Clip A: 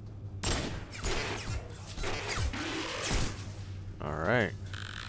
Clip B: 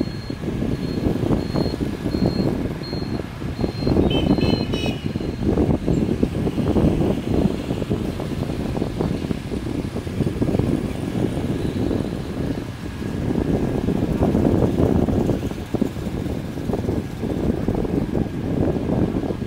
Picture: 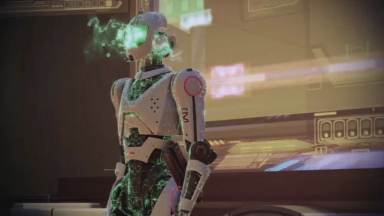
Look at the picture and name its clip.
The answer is A